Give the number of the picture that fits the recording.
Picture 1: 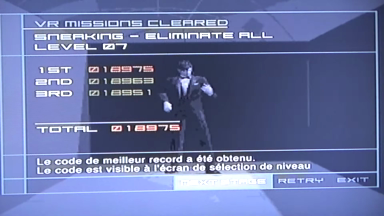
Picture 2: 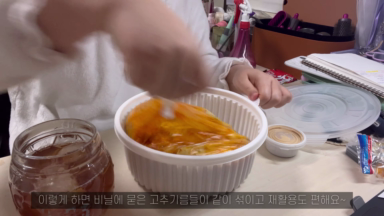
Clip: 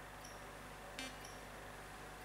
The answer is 1